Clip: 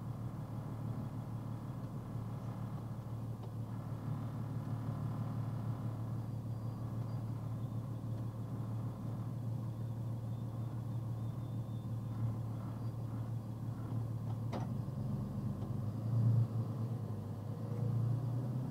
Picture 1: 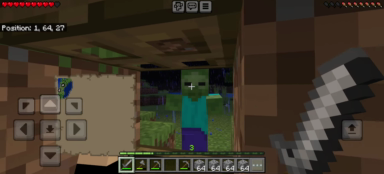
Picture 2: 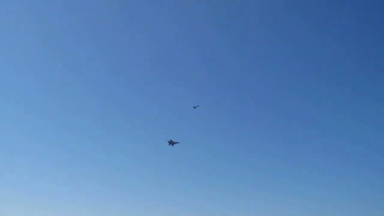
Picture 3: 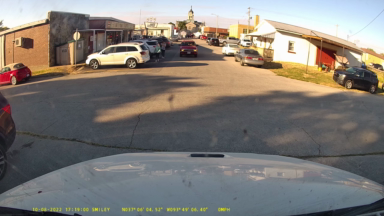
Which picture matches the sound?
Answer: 3